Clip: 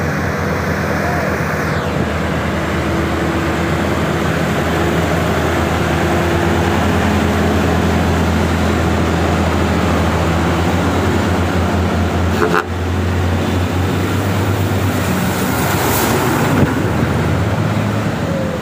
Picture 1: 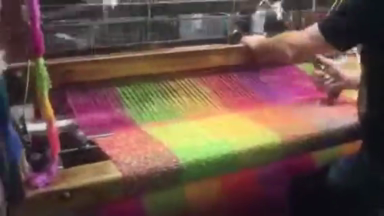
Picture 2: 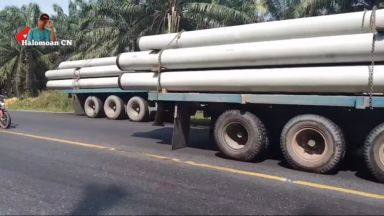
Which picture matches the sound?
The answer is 2